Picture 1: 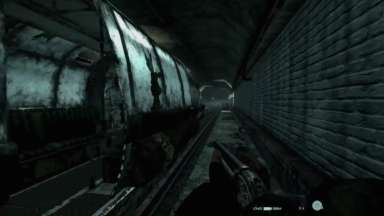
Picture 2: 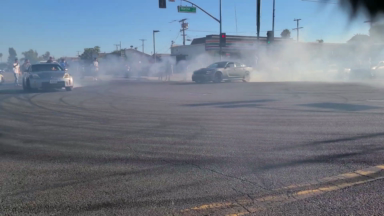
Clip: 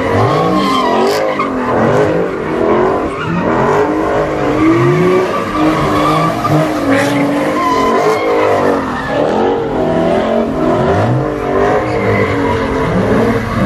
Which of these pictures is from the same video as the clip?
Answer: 2